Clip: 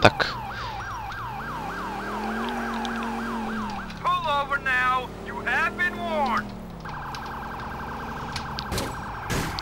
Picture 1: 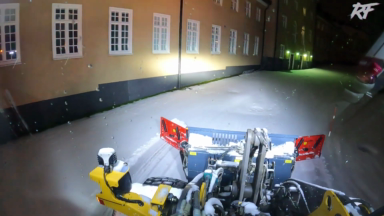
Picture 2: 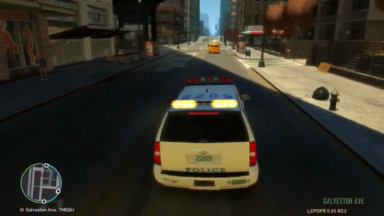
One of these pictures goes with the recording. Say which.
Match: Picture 2